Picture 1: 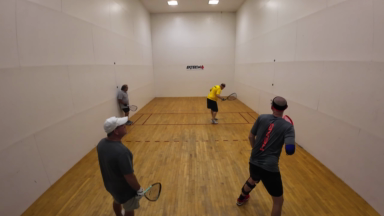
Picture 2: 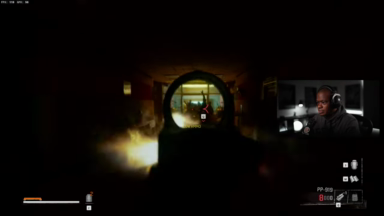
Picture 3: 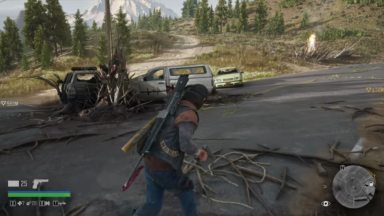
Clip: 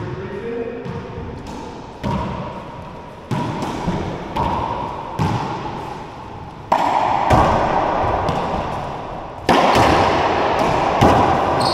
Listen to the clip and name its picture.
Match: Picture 1